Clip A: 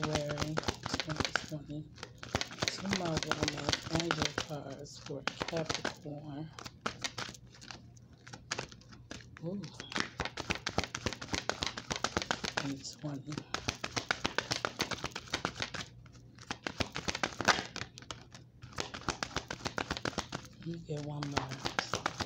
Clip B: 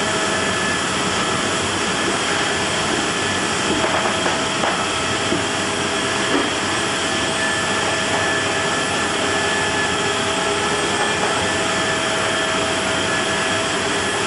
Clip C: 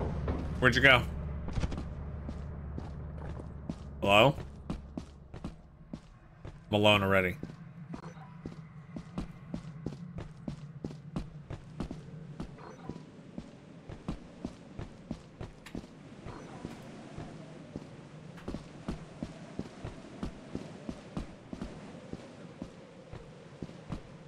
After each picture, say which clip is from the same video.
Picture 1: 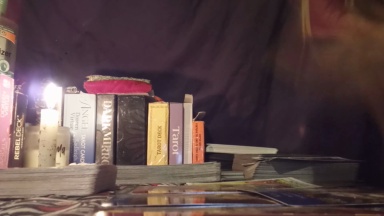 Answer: A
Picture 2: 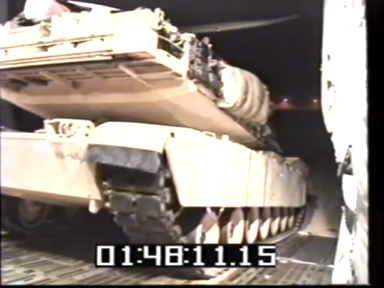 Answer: B